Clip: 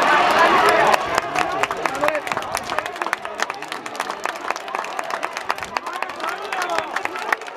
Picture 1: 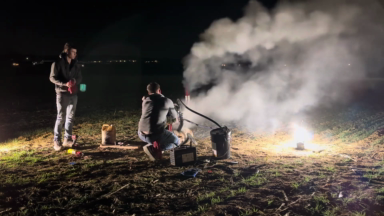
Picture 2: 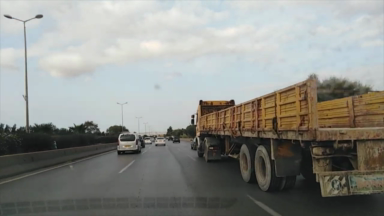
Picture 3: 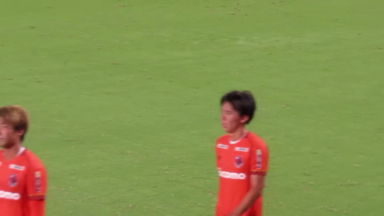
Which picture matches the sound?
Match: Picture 3